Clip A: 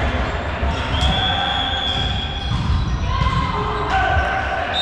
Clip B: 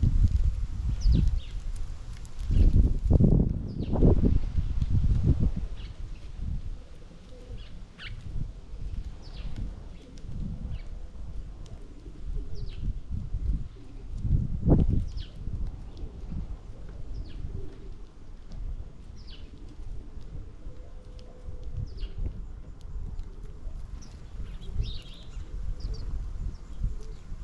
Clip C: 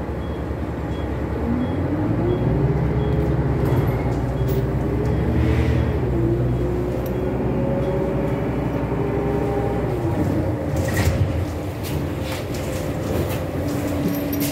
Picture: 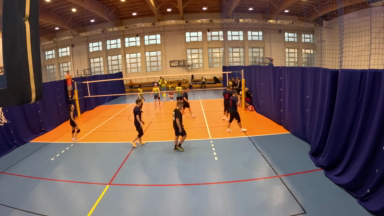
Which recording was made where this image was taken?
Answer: A